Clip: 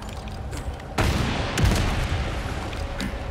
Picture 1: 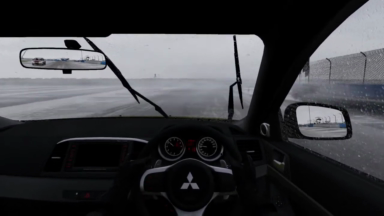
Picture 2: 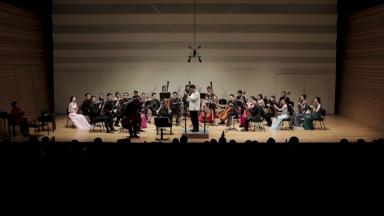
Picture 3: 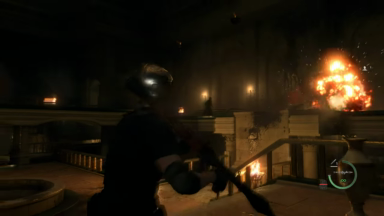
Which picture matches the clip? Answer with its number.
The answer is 3